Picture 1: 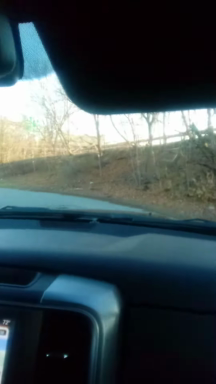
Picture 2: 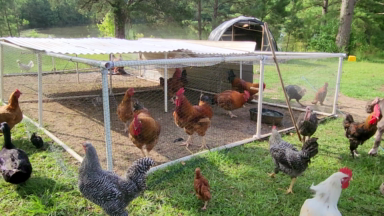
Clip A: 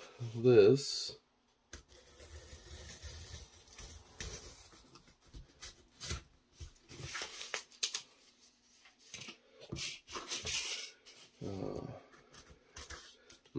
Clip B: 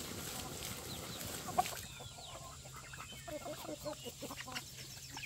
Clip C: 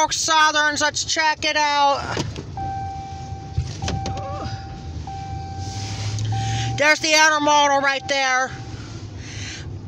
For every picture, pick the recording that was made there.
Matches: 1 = C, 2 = B